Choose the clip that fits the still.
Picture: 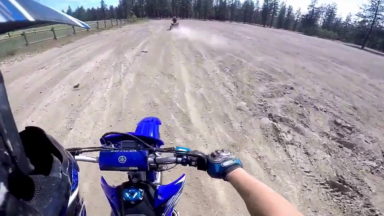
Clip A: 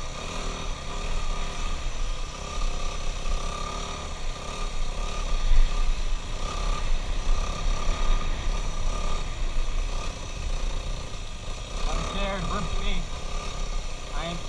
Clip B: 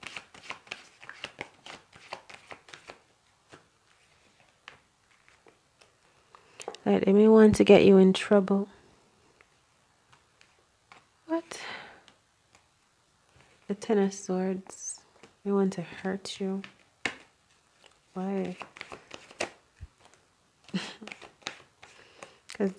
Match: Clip A